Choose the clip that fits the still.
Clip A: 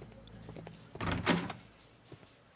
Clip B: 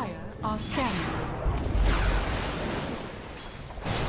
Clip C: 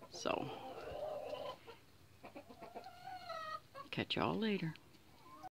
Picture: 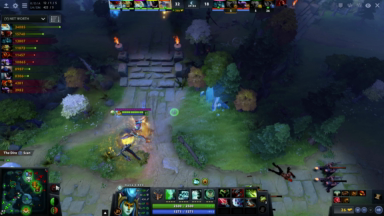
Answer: B